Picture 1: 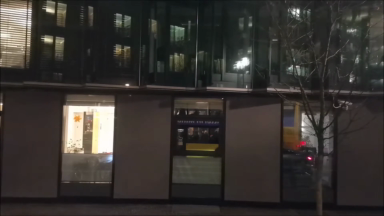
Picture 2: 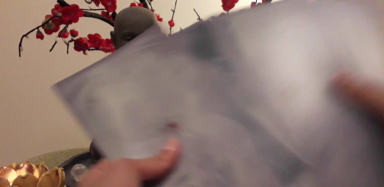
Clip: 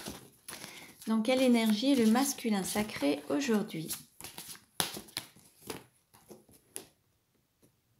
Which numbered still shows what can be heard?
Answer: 2